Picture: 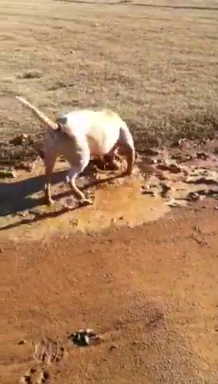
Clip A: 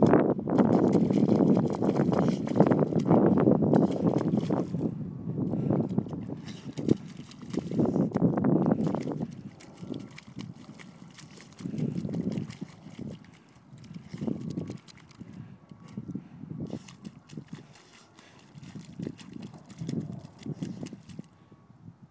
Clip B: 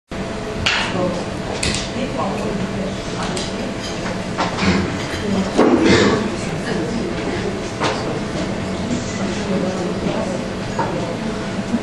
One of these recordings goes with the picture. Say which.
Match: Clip A